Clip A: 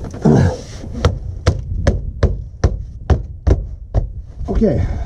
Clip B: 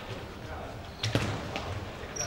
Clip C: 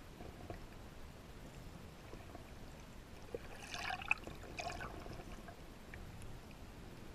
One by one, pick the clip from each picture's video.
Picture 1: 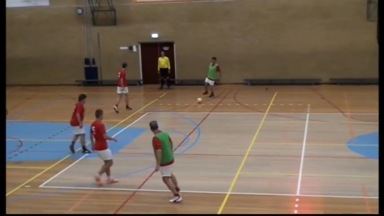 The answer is B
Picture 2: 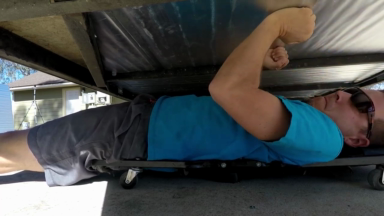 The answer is A